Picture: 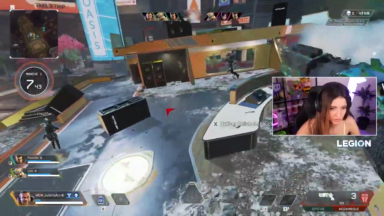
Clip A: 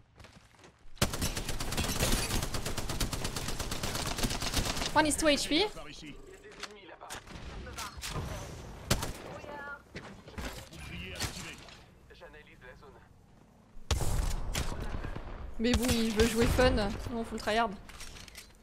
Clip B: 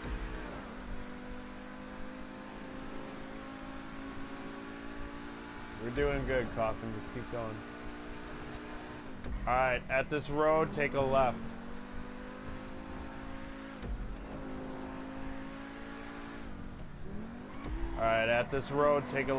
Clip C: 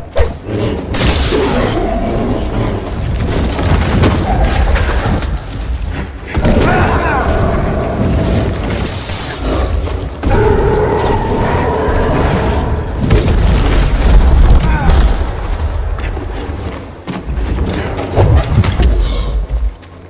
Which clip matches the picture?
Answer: A